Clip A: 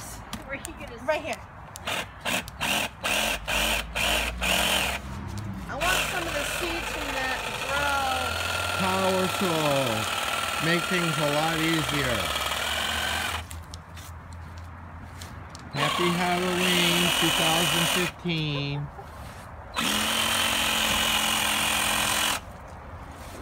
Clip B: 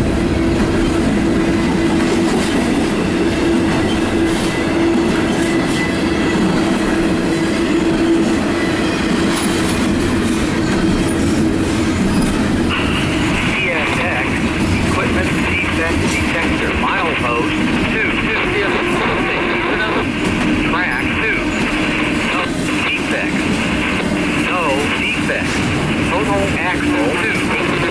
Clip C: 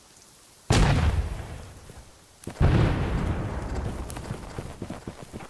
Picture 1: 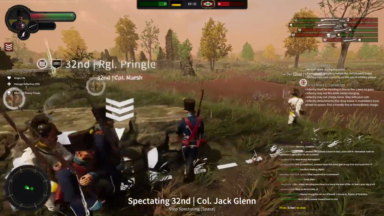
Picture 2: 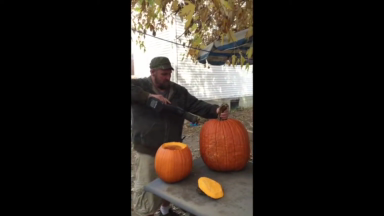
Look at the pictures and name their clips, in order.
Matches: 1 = C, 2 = A